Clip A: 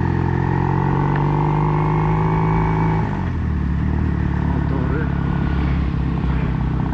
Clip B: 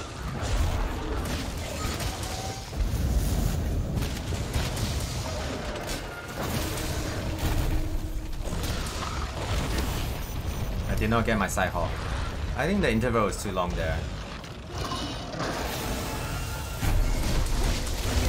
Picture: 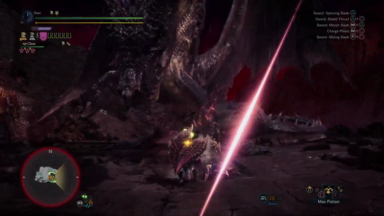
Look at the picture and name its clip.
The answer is B